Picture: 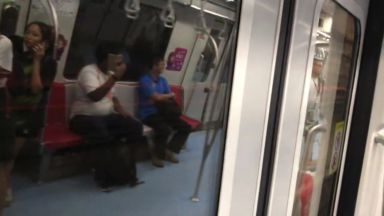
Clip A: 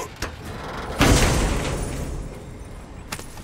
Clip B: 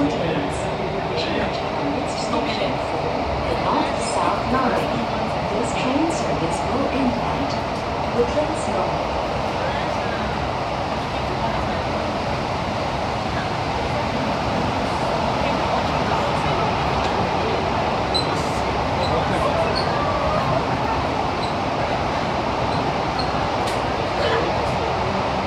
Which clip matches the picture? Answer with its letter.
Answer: B